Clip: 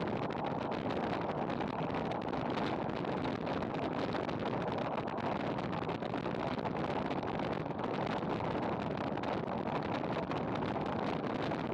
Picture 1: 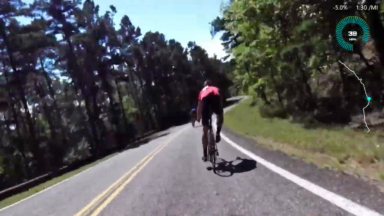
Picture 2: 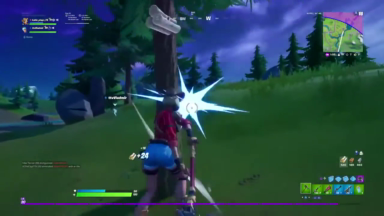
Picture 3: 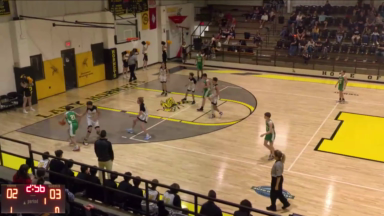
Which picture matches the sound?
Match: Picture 1